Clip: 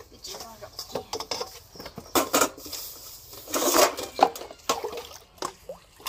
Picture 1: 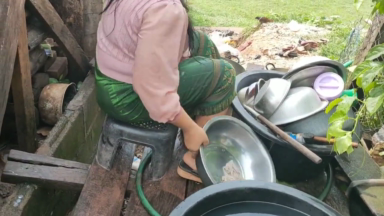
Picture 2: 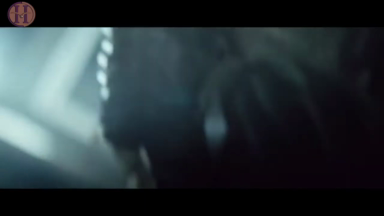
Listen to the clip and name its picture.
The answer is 1